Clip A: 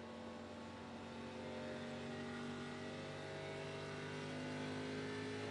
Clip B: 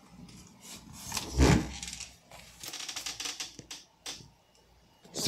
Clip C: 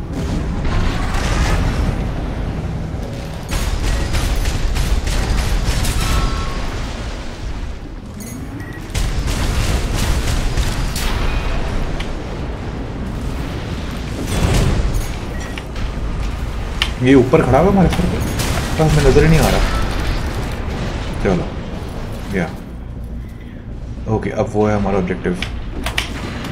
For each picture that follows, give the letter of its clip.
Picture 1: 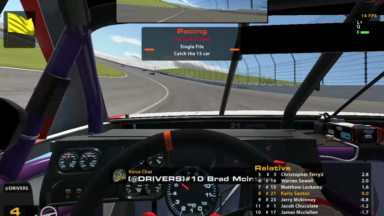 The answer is A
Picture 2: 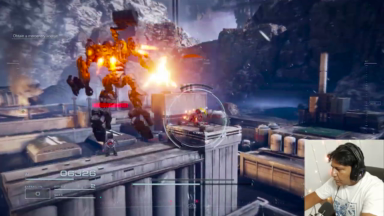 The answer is C